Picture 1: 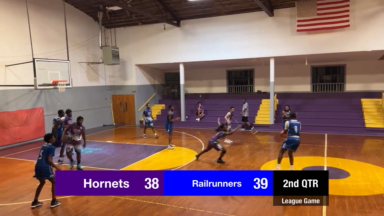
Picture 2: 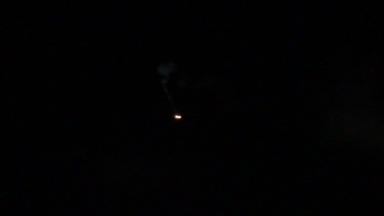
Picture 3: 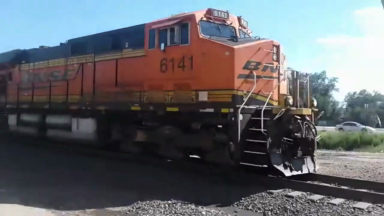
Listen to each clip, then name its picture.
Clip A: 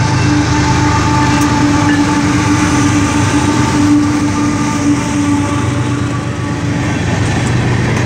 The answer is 3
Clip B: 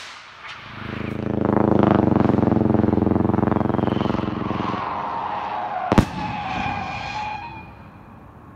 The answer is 2